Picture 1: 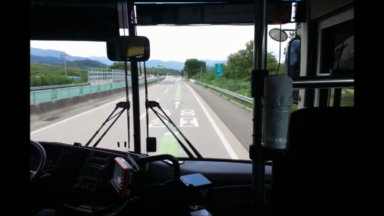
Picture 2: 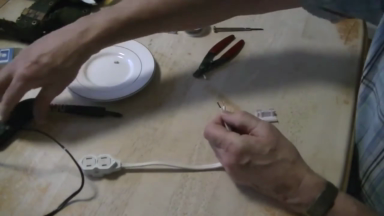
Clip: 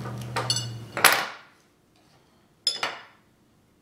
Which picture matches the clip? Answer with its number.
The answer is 2